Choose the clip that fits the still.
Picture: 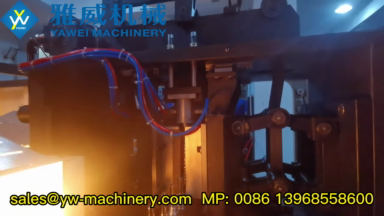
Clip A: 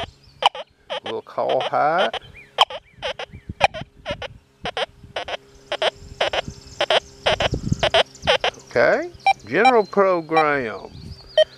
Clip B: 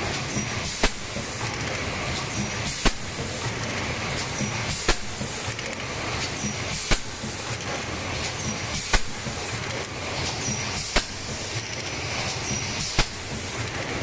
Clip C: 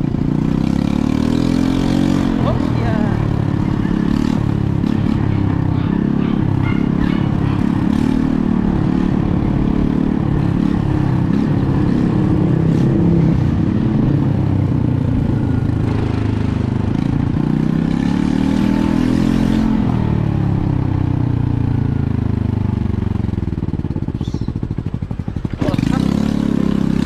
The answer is B